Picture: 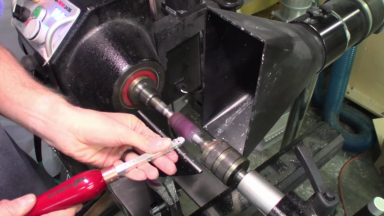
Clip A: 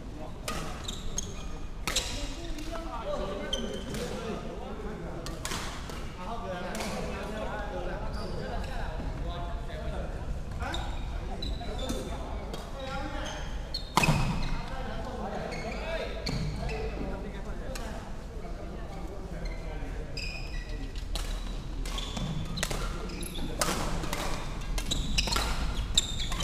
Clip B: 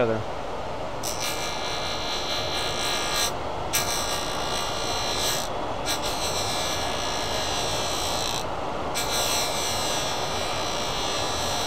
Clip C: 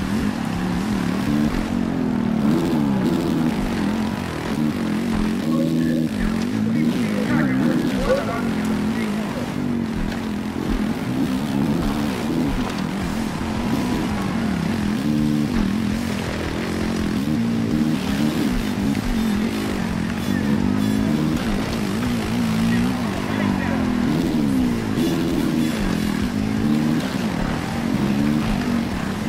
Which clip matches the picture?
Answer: B